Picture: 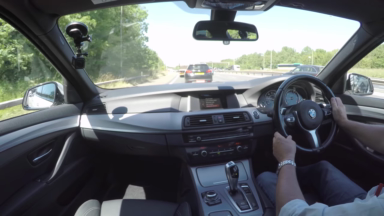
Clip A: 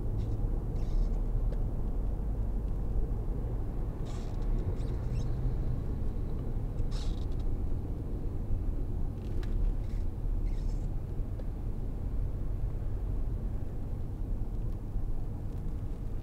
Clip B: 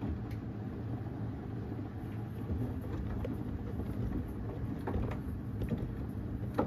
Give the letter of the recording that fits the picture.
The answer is A